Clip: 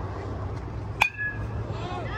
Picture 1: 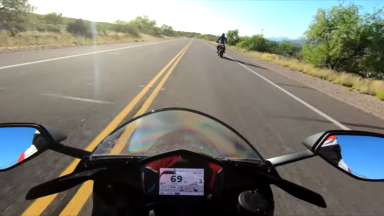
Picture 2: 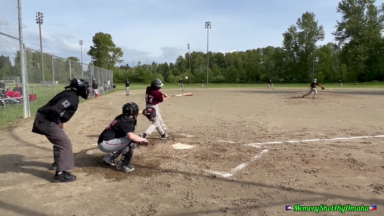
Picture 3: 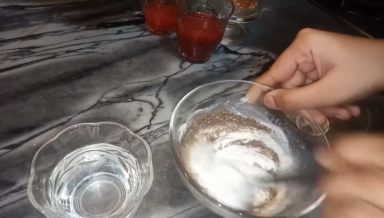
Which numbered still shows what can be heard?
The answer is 2